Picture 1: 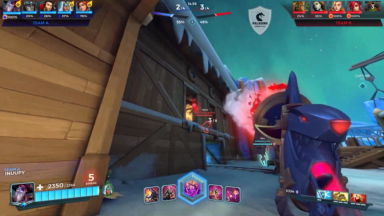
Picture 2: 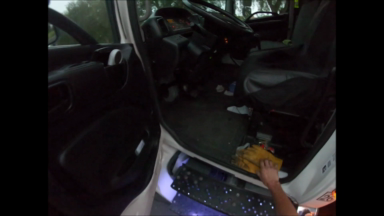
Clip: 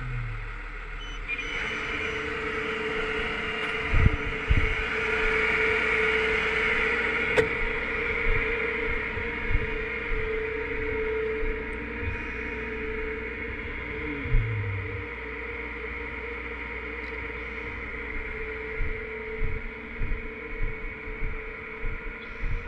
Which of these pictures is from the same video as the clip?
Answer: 2